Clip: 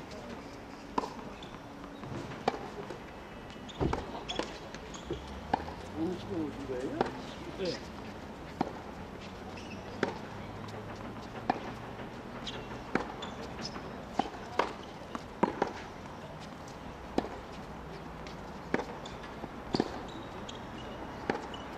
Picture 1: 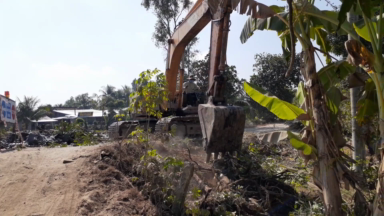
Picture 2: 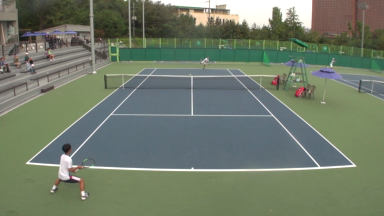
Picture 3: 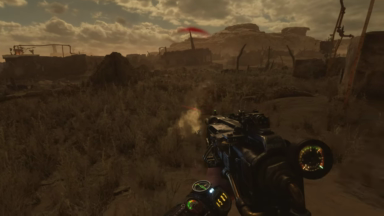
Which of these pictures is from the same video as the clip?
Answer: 2